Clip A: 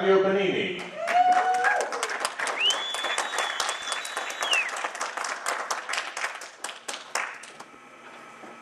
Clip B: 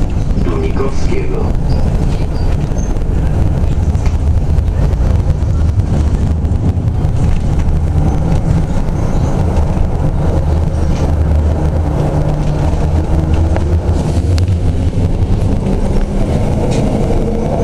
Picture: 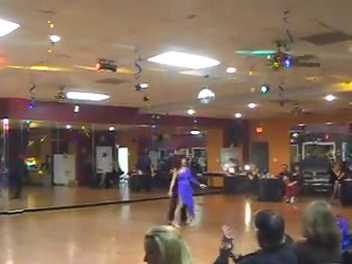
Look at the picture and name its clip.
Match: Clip A